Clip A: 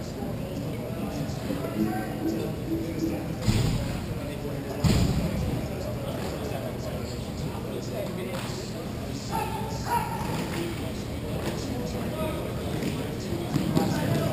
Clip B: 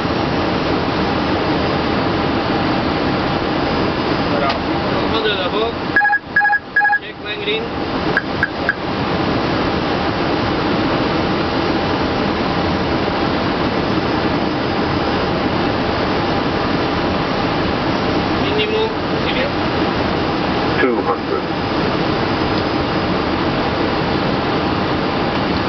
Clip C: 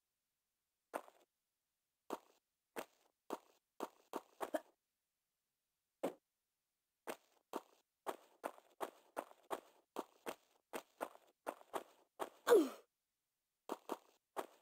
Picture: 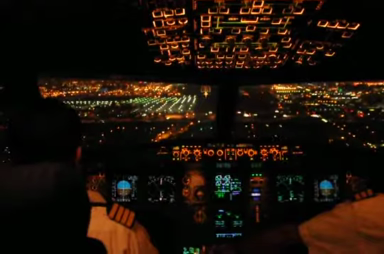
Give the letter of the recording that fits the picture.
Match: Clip B